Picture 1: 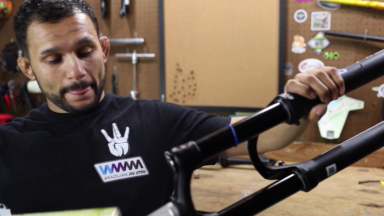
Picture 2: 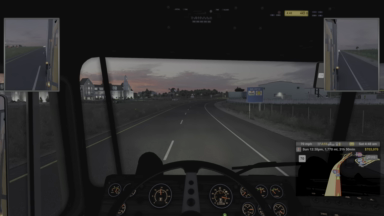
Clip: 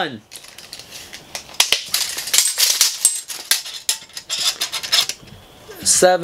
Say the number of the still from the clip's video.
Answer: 1